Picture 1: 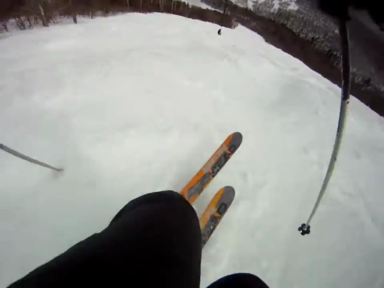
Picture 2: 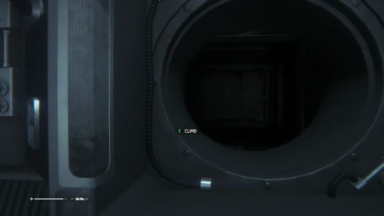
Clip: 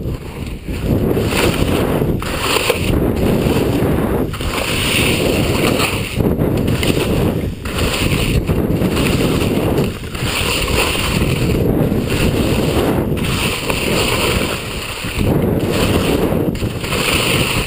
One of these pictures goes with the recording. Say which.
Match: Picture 1